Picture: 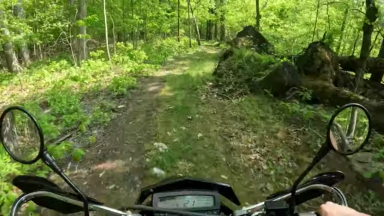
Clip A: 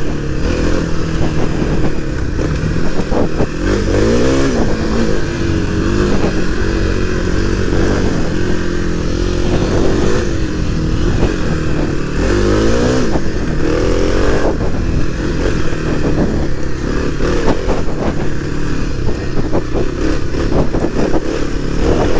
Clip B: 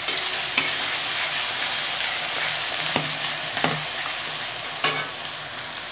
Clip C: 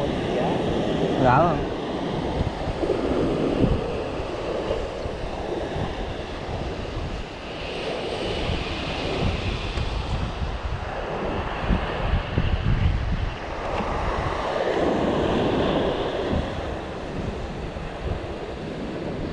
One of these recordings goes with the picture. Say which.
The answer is A